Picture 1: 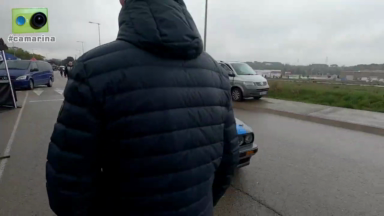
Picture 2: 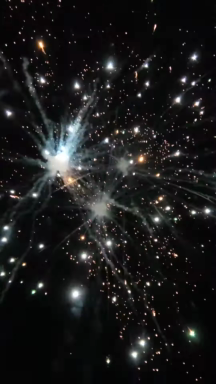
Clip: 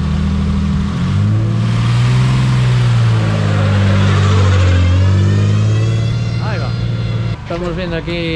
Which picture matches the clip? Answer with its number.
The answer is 1